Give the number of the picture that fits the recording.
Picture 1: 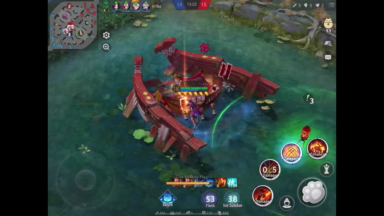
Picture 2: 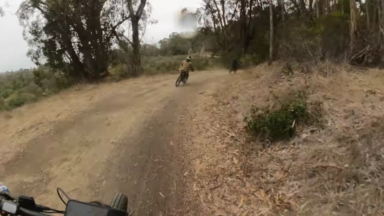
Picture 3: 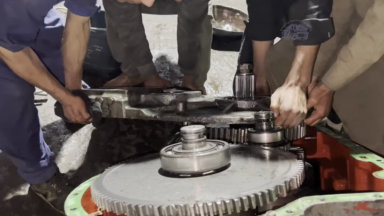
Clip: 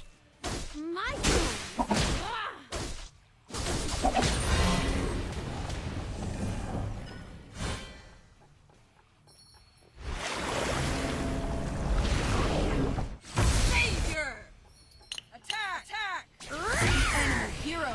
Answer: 1